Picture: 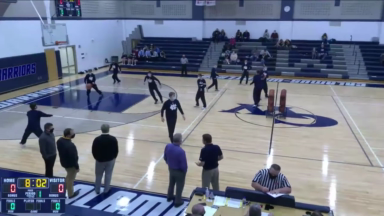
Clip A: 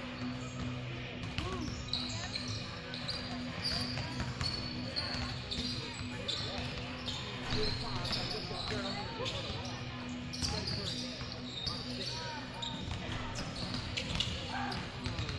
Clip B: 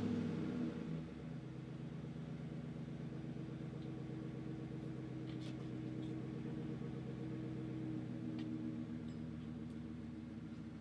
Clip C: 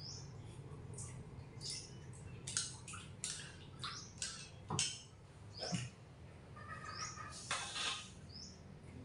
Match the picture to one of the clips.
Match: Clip A